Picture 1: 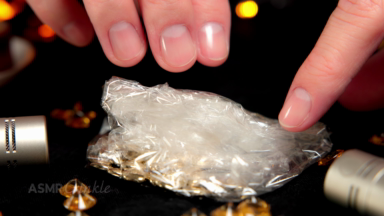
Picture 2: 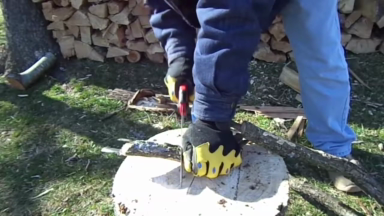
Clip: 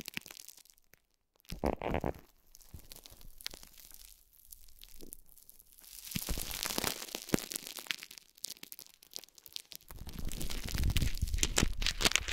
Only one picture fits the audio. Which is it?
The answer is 1